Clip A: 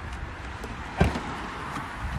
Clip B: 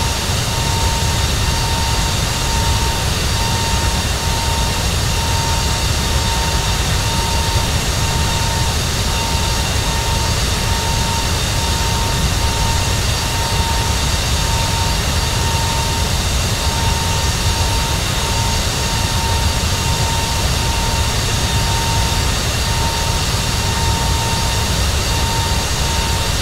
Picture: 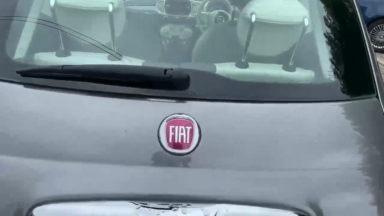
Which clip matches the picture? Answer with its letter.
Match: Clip A